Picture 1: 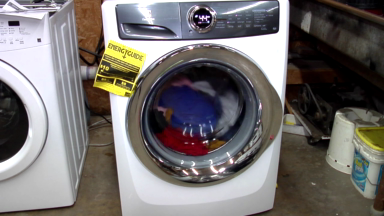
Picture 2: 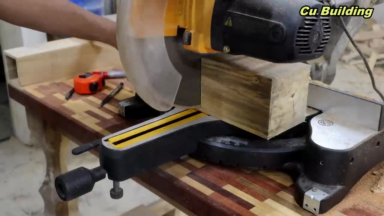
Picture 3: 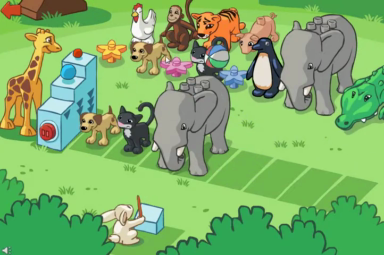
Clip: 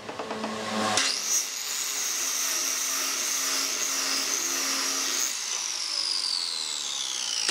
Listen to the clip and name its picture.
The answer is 2